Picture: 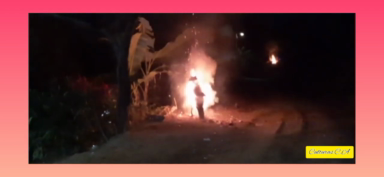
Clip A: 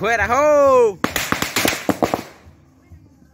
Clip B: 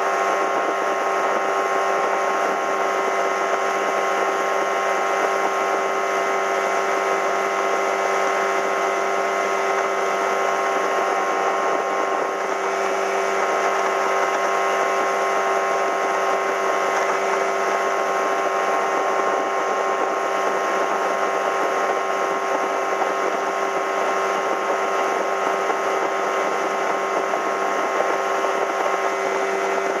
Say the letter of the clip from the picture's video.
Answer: A